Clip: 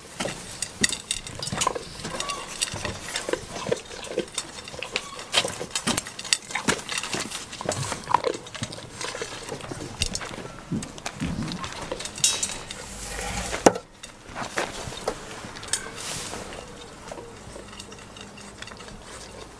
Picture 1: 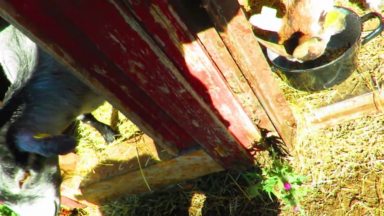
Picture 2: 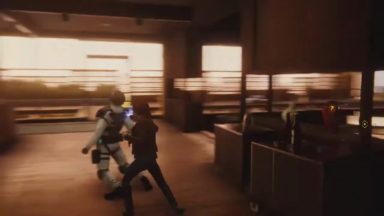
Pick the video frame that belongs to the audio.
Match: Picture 1